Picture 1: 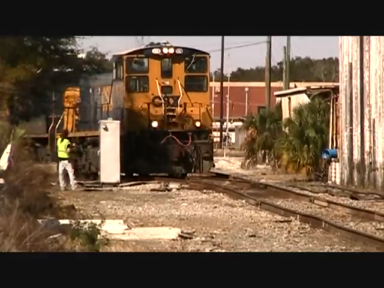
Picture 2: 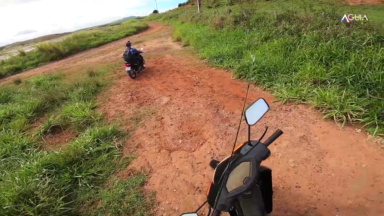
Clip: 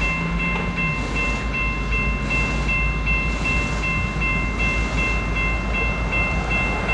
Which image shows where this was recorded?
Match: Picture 1